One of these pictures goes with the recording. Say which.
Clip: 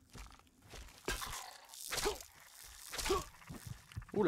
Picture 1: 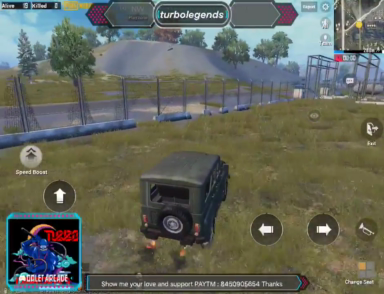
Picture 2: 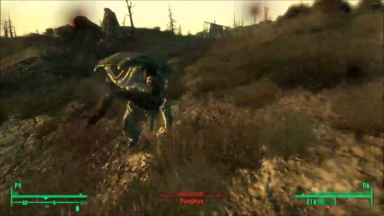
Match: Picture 2